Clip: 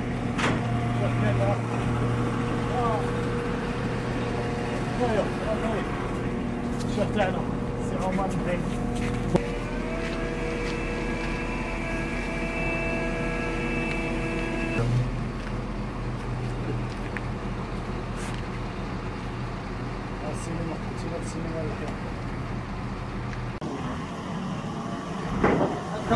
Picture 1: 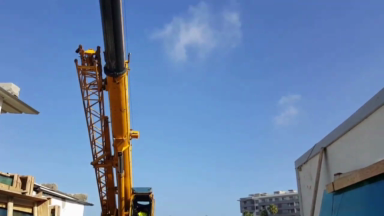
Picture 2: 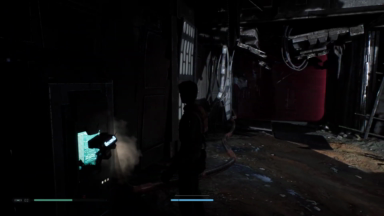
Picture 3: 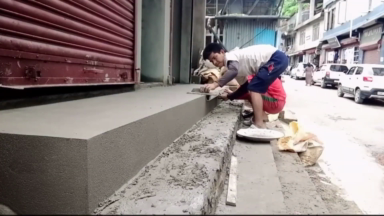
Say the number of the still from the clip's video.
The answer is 1